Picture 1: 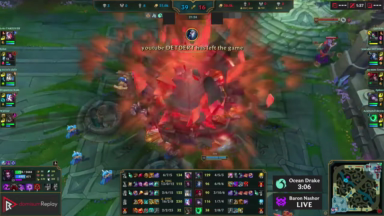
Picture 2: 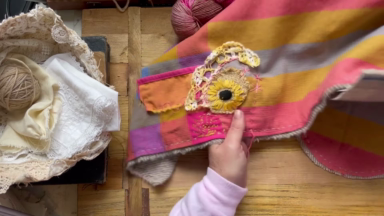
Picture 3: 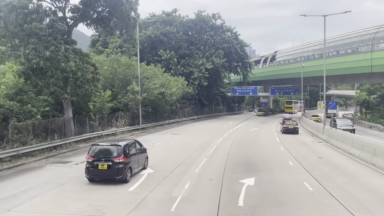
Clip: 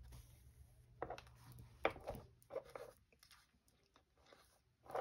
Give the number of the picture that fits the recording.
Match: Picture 2